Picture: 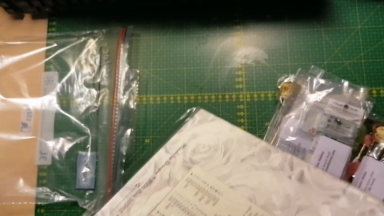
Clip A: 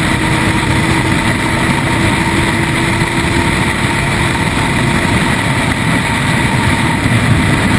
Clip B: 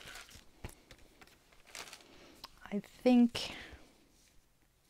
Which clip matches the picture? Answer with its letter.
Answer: B